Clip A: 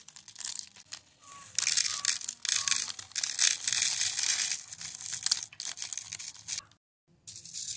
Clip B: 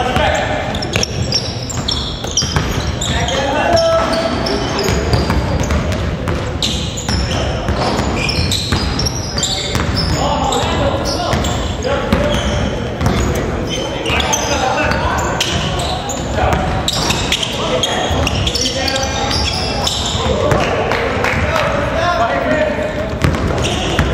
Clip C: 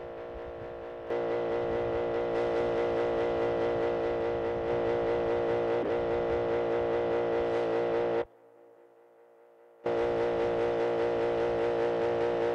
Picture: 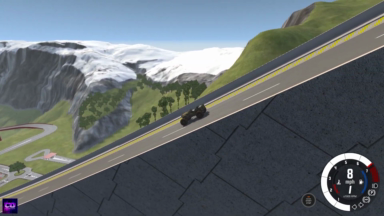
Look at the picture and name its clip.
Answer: C